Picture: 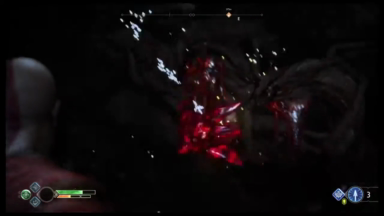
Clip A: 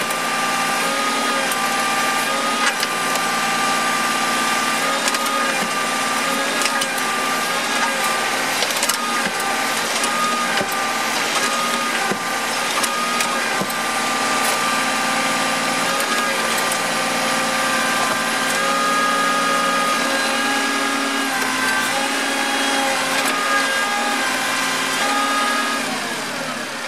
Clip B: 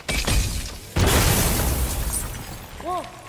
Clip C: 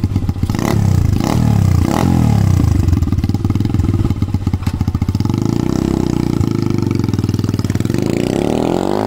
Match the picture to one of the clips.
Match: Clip B